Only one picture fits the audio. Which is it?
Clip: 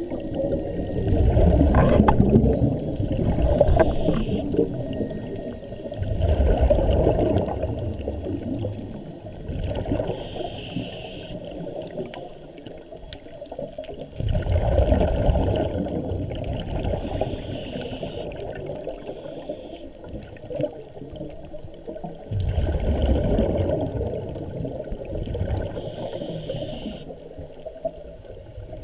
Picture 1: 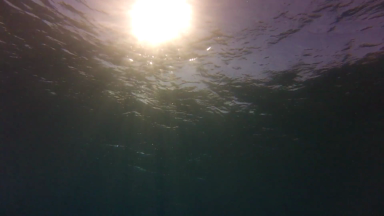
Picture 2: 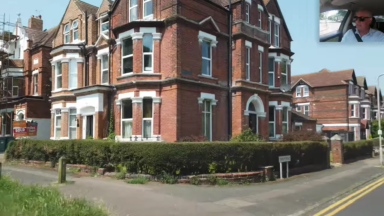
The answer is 1